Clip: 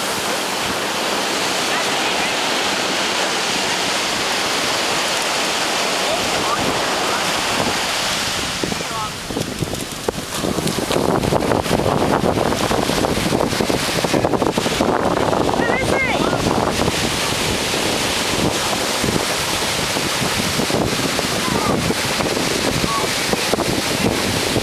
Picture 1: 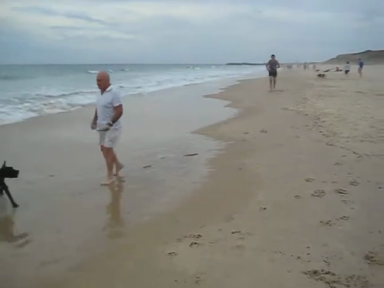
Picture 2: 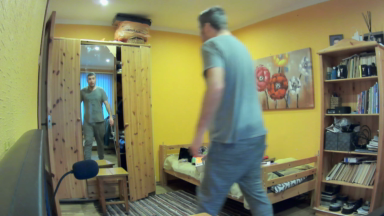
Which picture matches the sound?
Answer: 1